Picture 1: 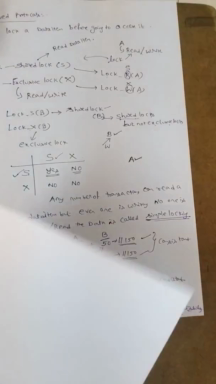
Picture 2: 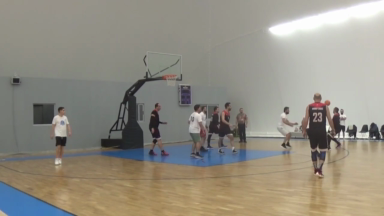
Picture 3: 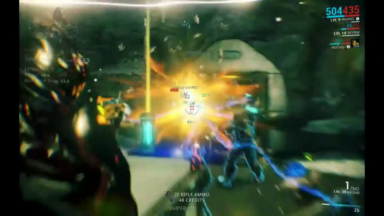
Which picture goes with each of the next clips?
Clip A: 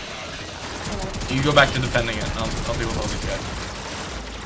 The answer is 3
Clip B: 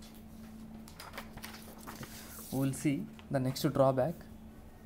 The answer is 1